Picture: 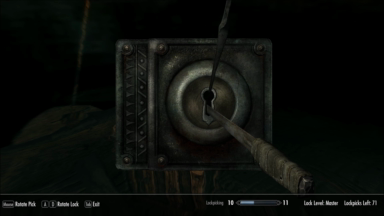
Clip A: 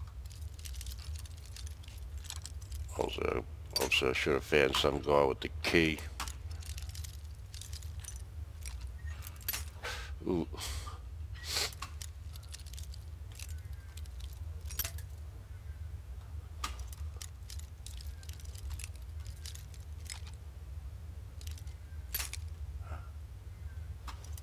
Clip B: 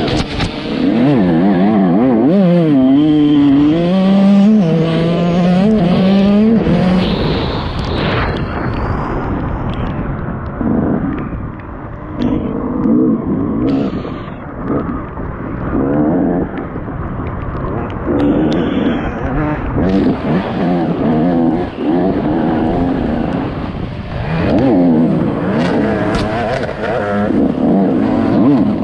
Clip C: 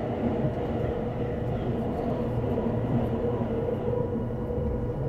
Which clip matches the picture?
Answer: A